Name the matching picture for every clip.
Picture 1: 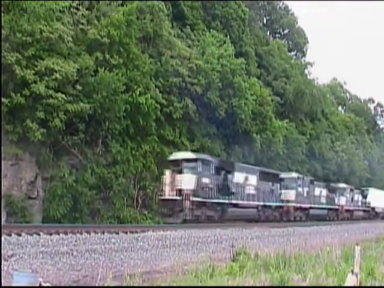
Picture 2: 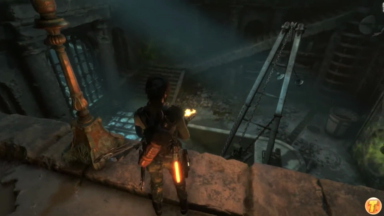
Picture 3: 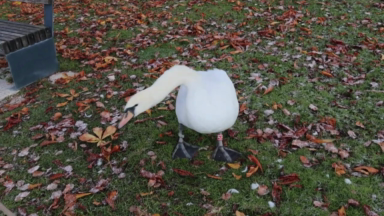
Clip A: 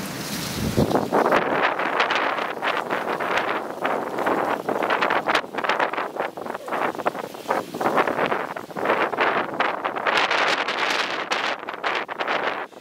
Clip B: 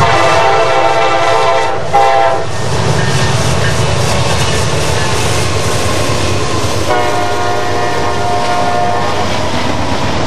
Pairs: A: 3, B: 1